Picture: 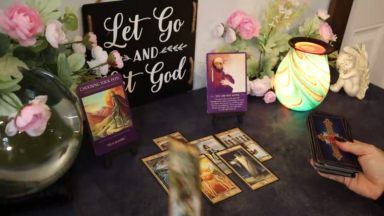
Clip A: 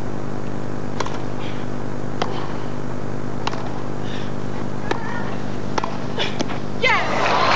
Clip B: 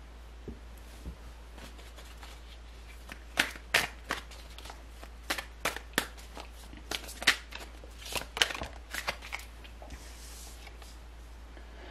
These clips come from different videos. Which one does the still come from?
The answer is B